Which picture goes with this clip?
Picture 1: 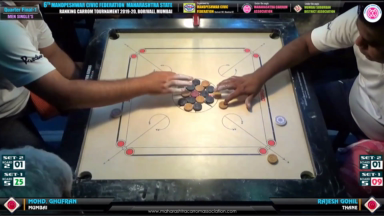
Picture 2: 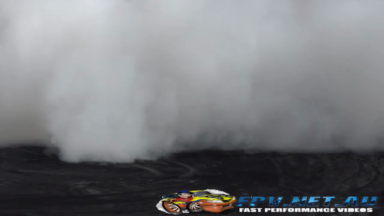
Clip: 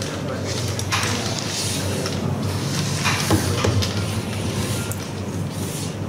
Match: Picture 1